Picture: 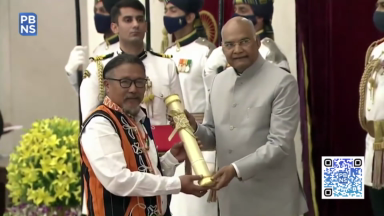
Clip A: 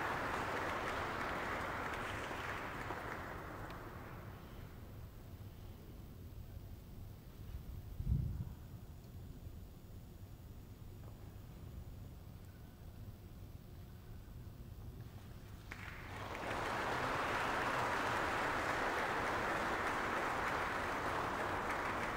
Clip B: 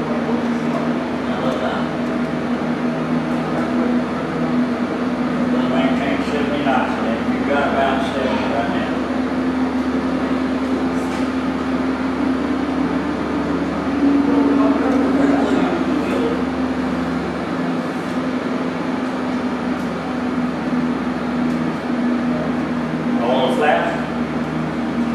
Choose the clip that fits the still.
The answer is A